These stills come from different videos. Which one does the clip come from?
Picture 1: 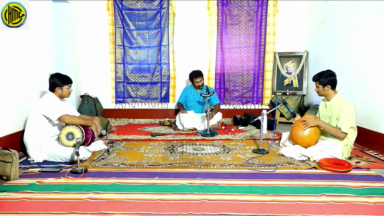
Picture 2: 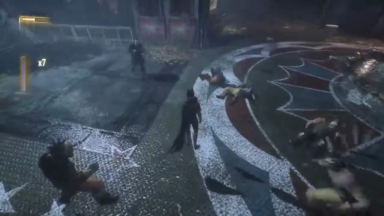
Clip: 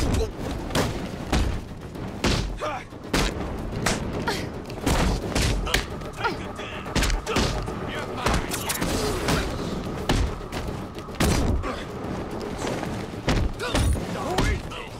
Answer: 2